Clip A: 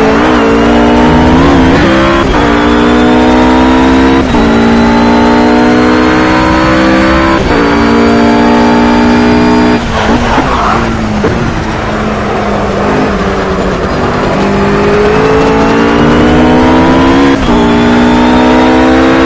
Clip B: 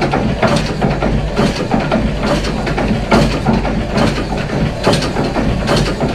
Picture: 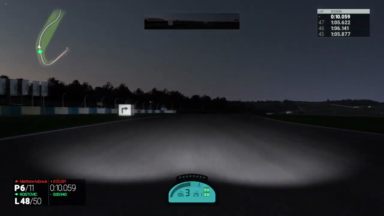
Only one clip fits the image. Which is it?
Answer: A